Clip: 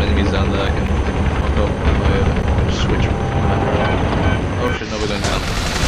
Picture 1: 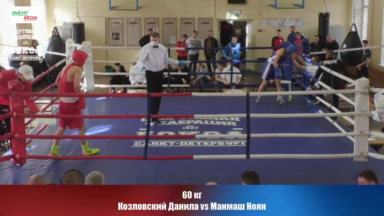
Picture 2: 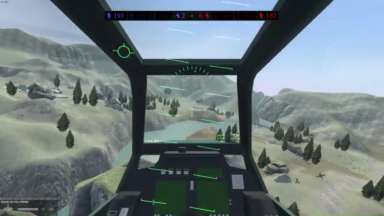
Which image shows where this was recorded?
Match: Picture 2